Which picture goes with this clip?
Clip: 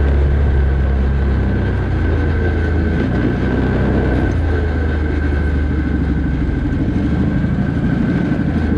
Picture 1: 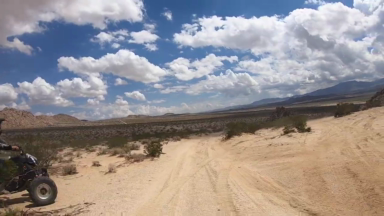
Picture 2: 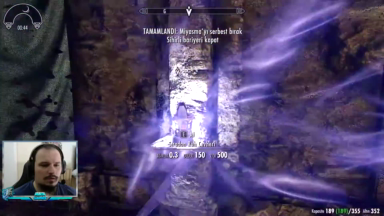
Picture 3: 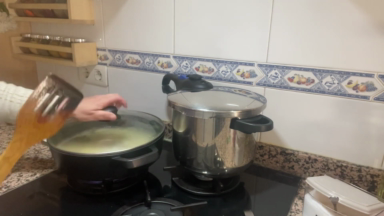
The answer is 1